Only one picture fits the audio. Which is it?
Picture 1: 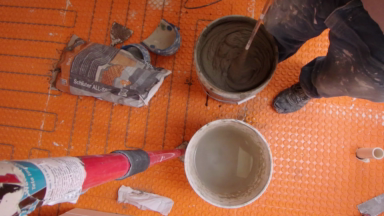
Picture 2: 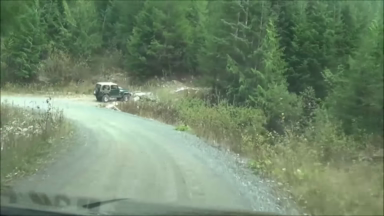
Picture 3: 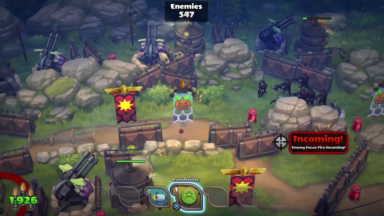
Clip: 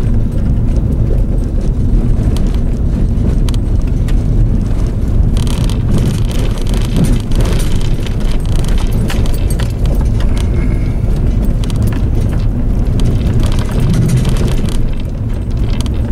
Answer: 2